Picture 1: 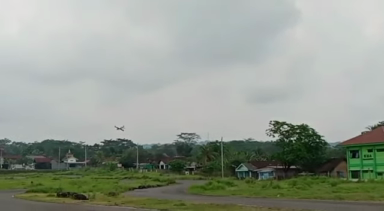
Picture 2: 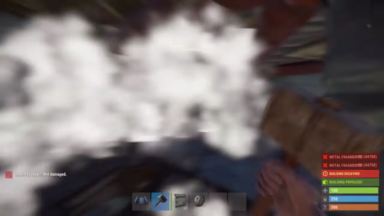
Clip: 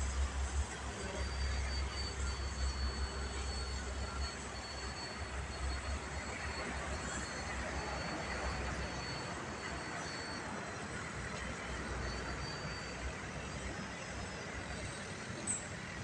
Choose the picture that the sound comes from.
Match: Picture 1